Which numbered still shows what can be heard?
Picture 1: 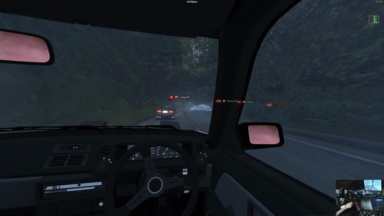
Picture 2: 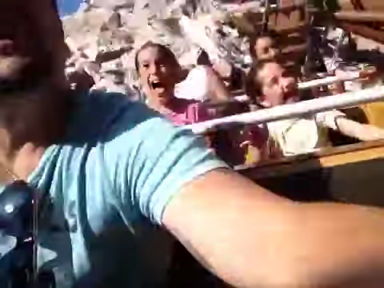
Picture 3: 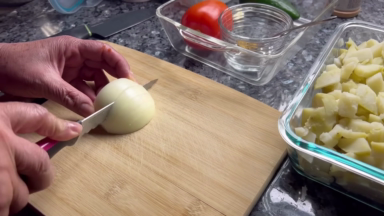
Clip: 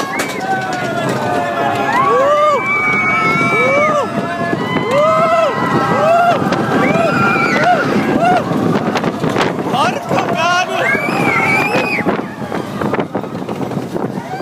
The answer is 2